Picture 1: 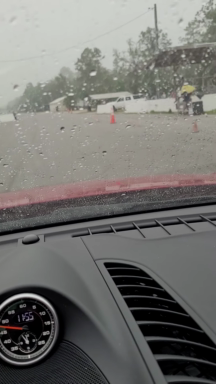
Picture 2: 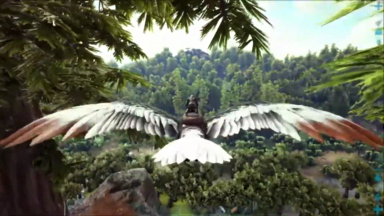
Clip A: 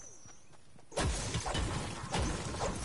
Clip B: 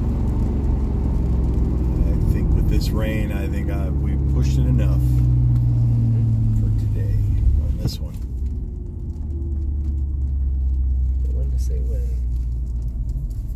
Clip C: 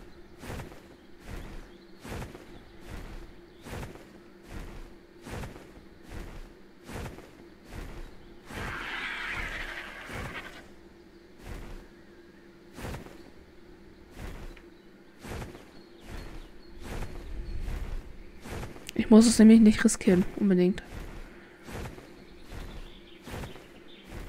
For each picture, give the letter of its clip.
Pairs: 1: B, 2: C